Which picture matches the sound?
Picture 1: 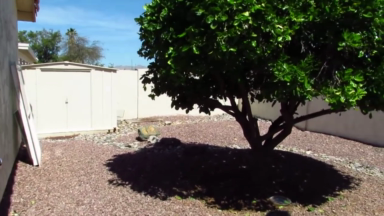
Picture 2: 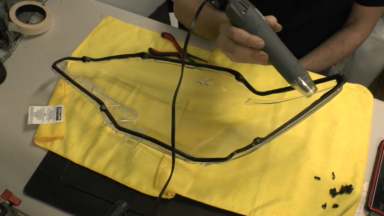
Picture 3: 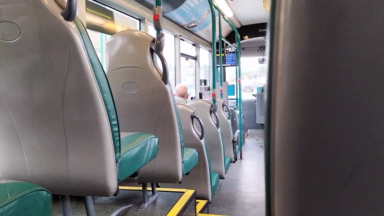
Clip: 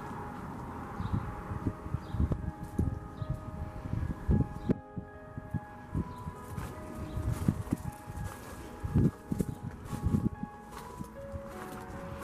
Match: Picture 1